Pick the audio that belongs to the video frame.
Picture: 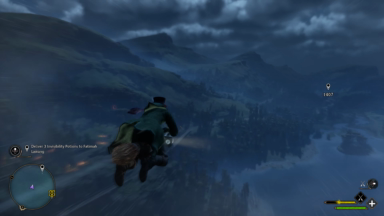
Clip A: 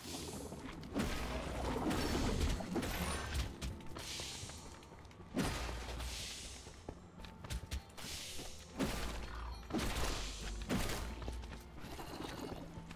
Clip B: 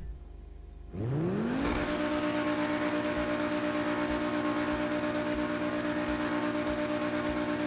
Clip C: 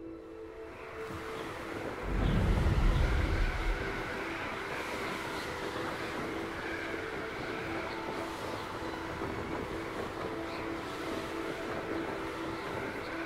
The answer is C